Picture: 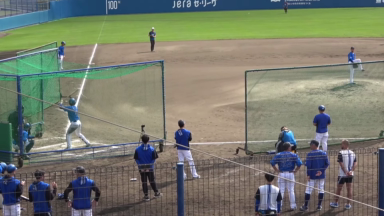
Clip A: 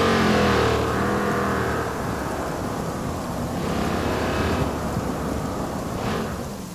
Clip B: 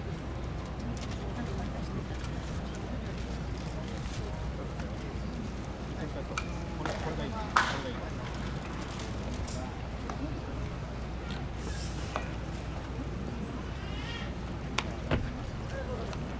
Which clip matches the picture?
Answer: B